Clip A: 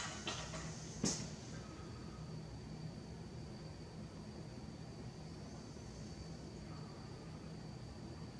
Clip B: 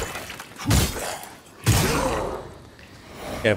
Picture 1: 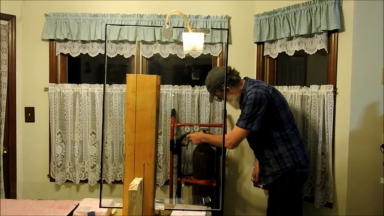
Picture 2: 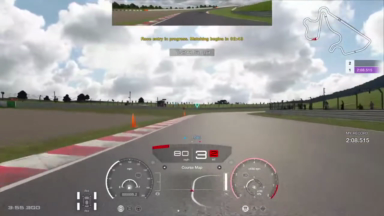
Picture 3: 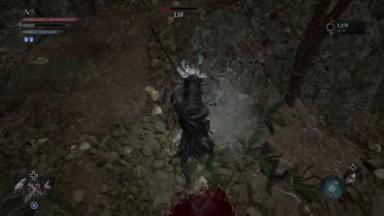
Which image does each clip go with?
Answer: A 1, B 3